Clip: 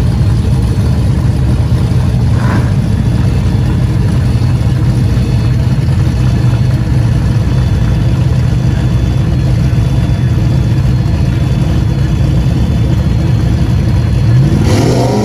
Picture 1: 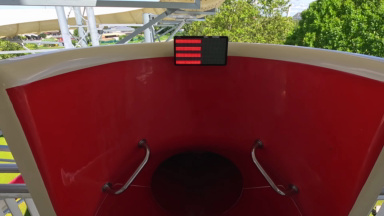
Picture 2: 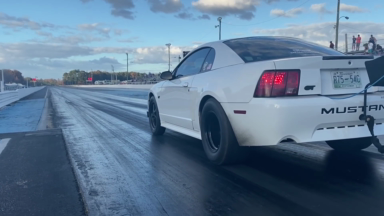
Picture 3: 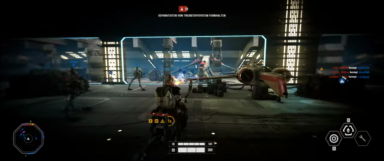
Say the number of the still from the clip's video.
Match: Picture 2